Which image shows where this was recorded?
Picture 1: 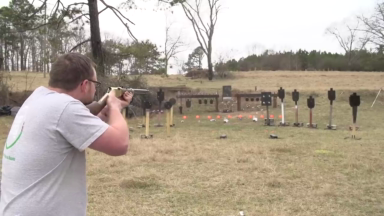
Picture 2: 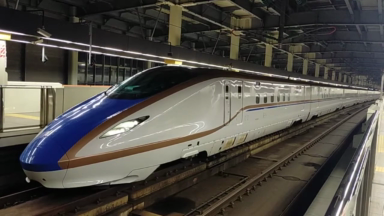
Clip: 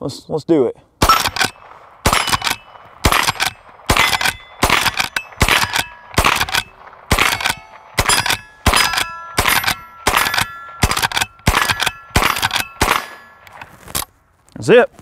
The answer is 1